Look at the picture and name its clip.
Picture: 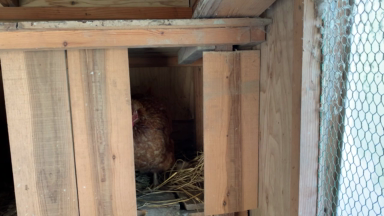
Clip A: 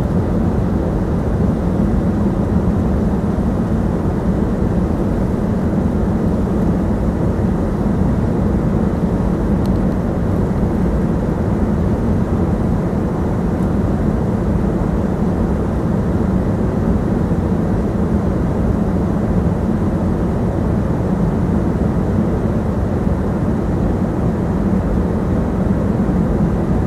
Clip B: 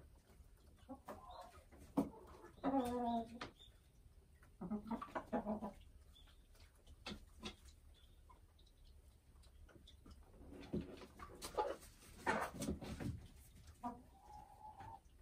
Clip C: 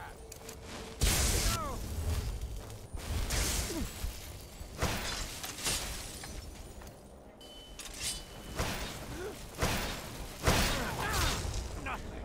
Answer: B